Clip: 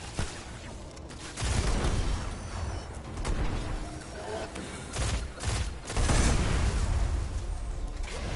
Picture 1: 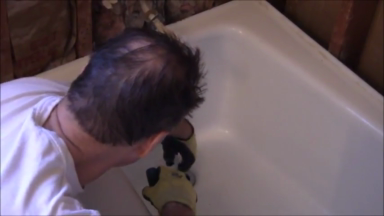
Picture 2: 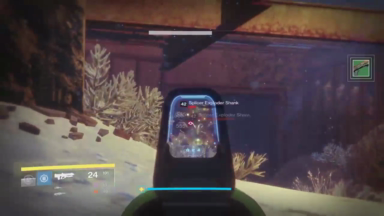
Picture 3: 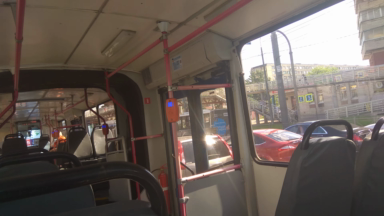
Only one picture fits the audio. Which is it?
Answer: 2